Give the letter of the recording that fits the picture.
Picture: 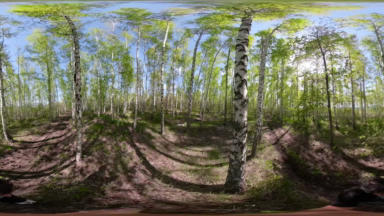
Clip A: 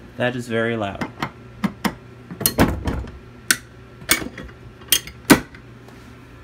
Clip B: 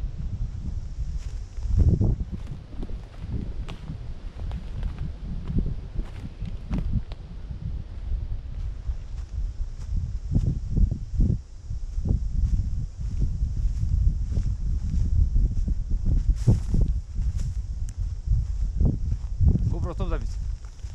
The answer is B